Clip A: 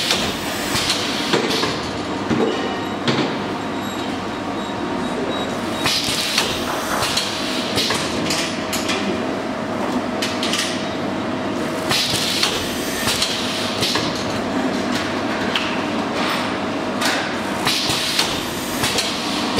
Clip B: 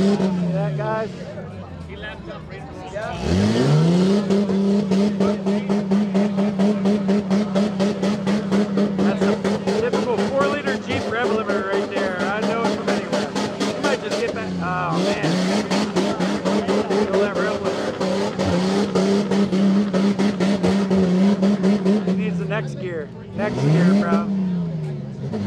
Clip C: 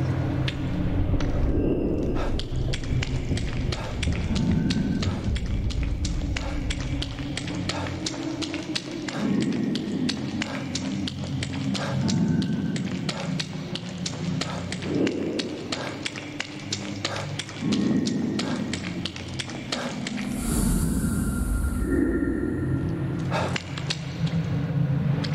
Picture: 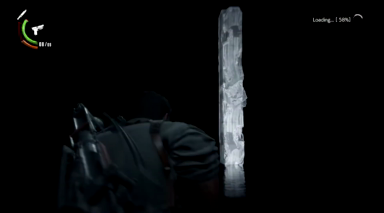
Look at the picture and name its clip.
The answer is C